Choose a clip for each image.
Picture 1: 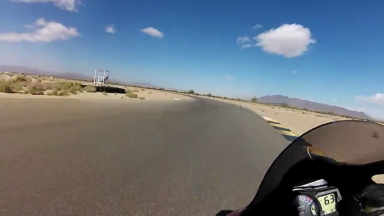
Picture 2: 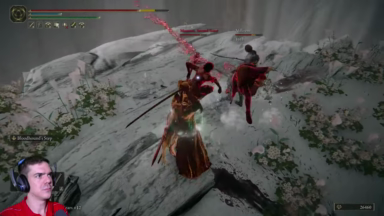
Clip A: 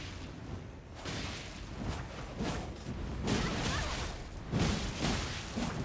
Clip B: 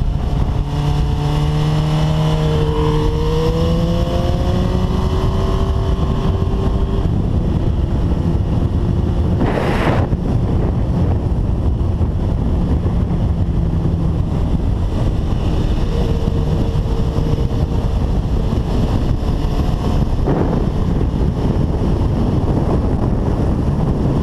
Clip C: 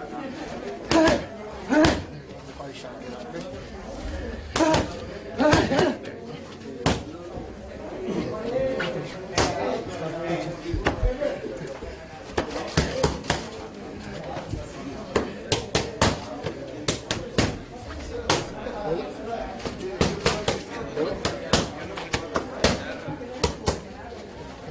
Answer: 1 B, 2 A